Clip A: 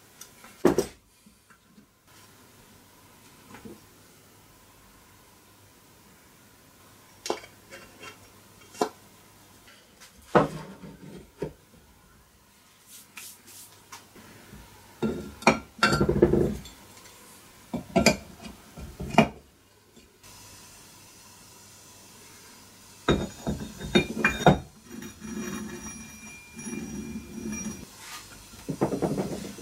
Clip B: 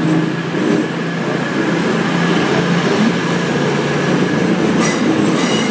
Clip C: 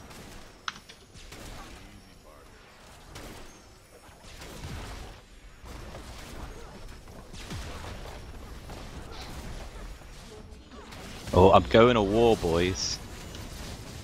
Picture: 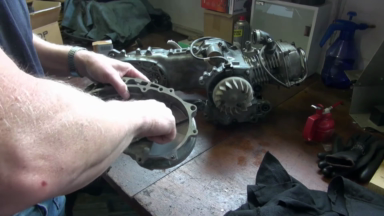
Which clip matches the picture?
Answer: A